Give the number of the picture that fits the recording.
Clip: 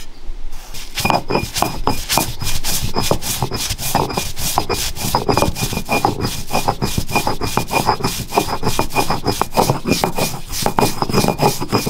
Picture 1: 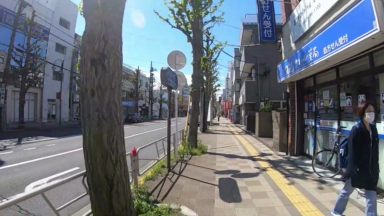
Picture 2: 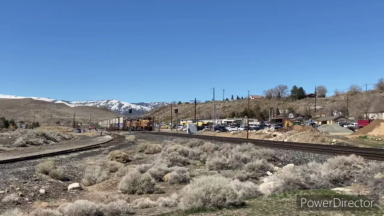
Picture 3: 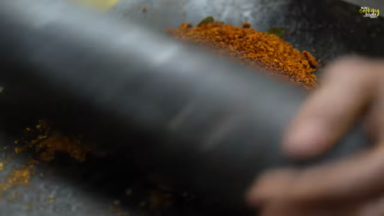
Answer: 3